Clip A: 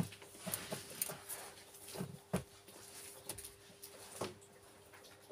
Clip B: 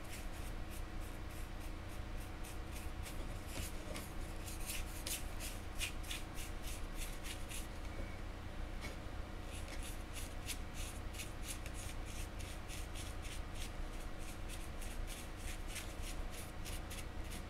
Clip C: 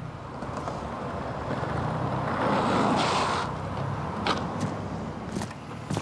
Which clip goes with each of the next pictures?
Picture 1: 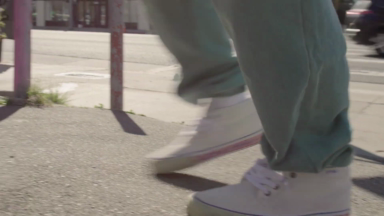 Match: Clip C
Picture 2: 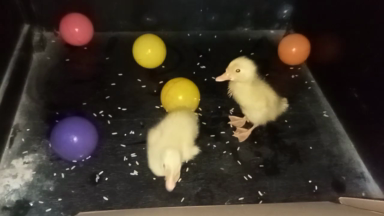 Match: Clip A